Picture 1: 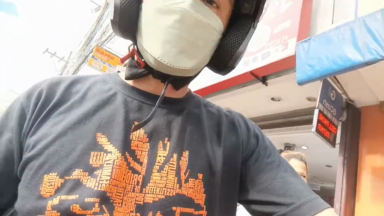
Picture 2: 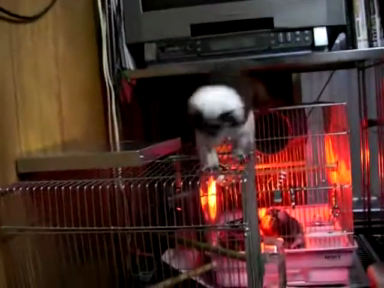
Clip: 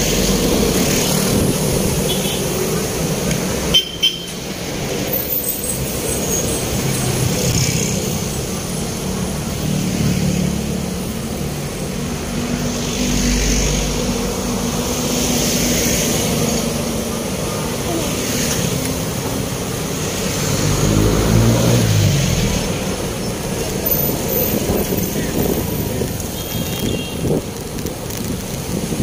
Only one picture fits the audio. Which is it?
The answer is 1